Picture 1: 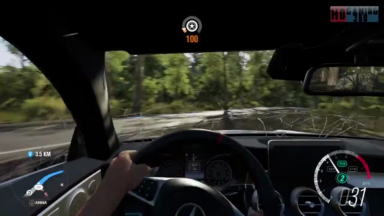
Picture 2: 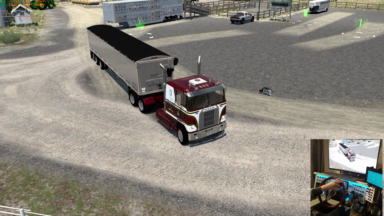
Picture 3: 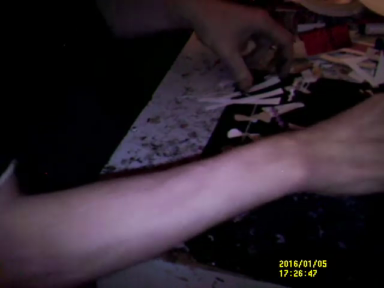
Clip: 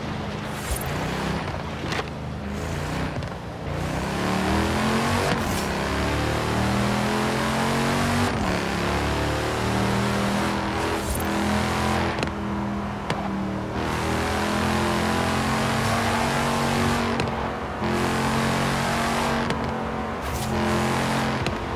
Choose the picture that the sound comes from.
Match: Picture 1